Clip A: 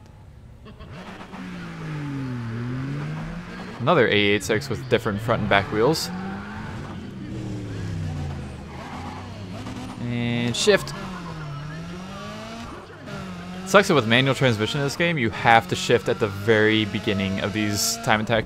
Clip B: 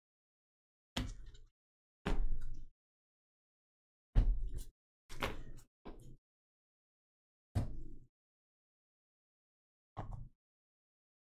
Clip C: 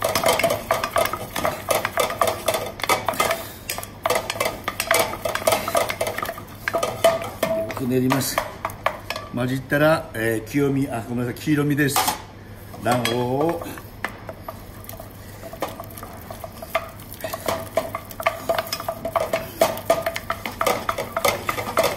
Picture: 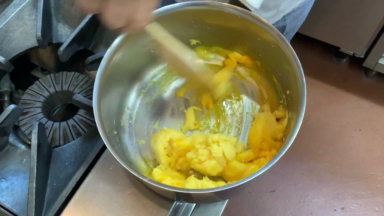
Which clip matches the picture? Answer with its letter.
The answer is C